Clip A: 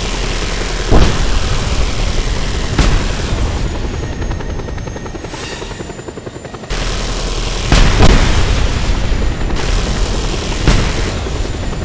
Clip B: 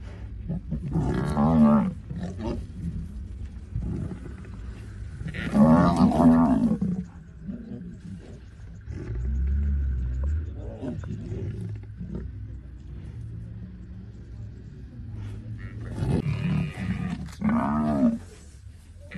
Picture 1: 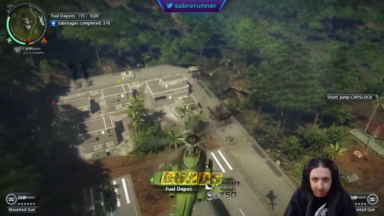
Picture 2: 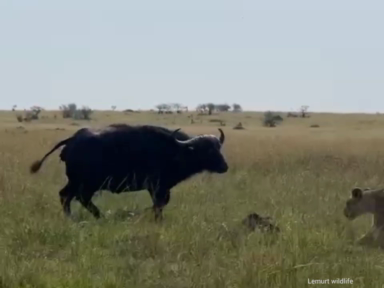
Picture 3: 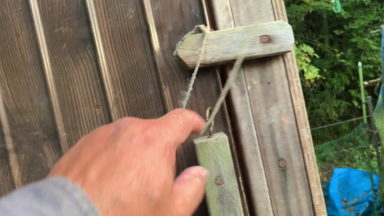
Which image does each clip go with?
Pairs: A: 1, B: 2